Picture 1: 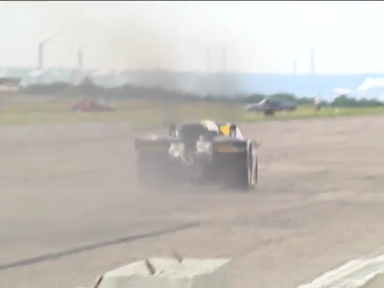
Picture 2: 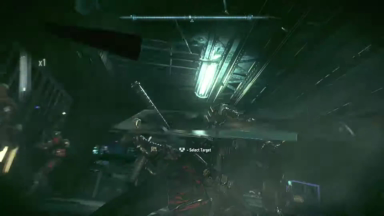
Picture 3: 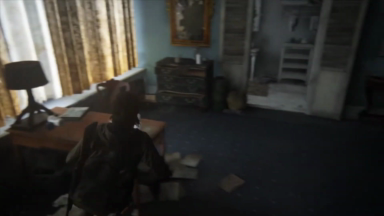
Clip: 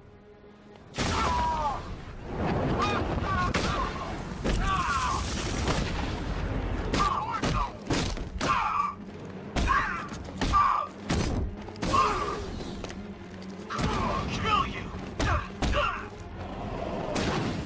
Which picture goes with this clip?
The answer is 2